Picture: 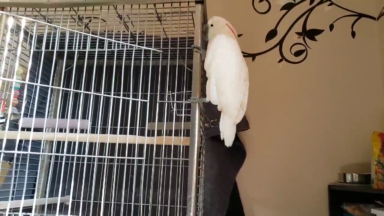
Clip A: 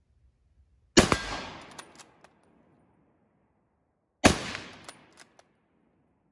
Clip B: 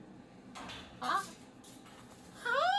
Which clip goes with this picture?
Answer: B